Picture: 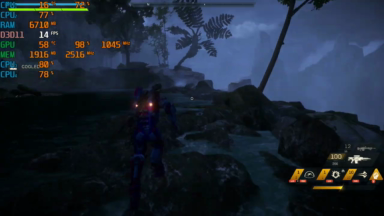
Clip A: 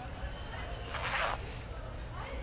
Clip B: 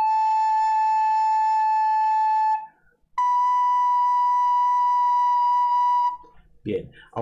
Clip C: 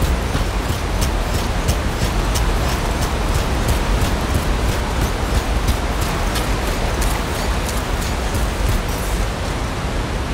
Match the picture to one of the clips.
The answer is C